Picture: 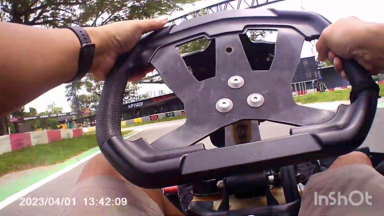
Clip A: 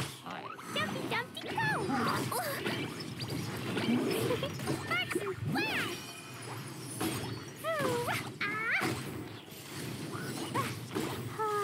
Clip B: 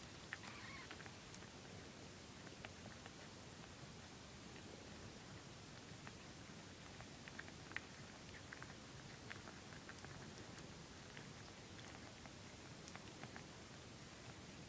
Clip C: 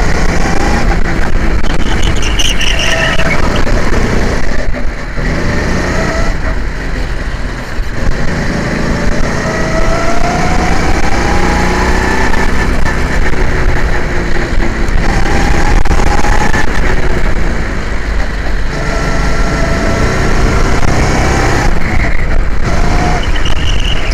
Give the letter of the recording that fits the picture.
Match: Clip C